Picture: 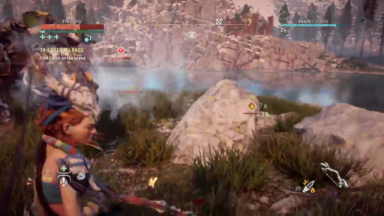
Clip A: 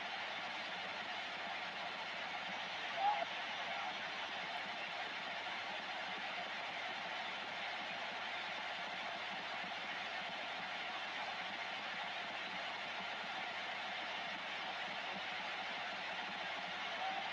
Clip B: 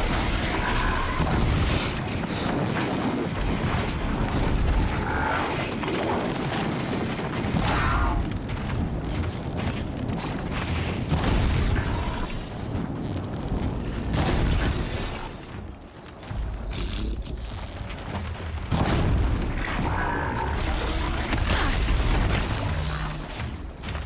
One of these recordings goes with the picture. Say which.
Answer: B